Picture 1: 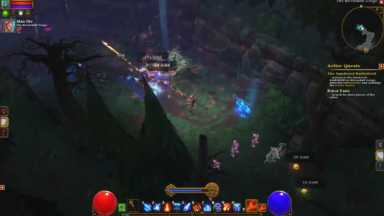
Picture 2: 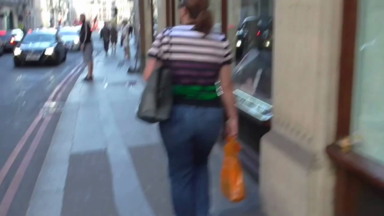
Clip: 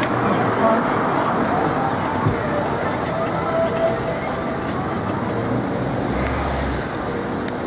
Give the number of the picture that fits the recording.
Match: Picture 2